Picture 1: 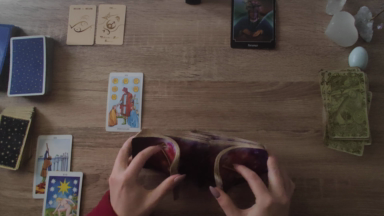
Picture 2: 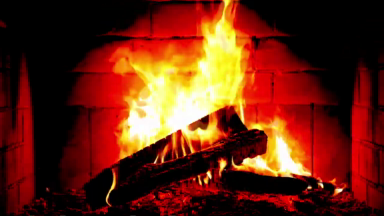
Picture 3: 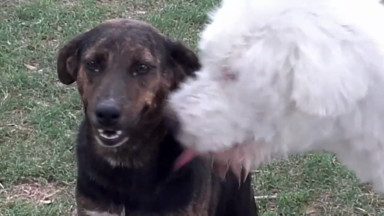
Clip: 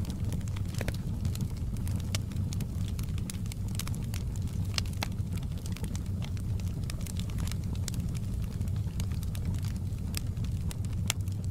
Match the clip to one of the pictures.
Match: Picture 2